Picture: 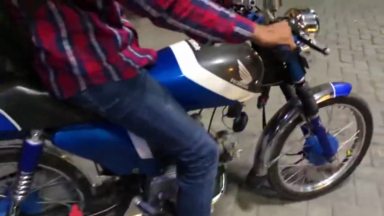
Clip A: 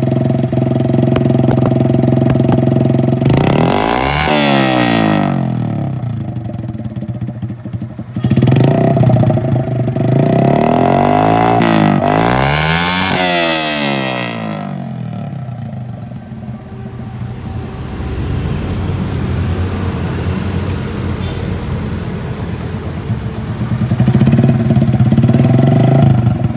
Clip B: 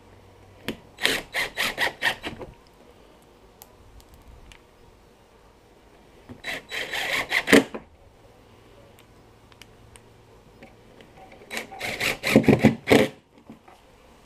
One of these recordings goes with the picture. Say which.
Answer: A